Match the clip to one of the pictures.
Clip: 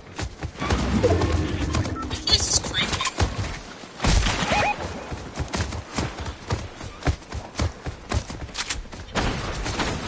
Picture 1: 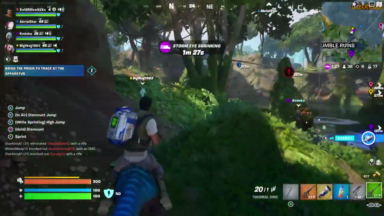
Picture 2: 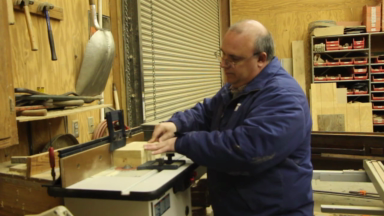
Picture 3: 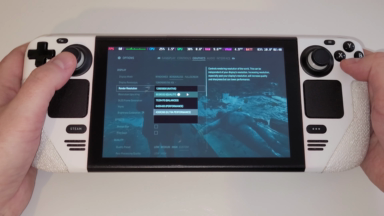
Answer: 1